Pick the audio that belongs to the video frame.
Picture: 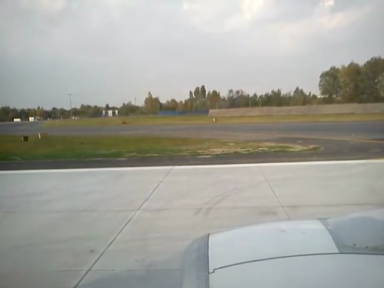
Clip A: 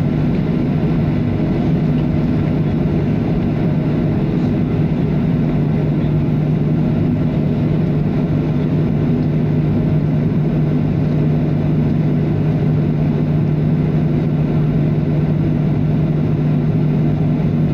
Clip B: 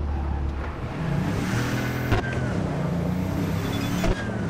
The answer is A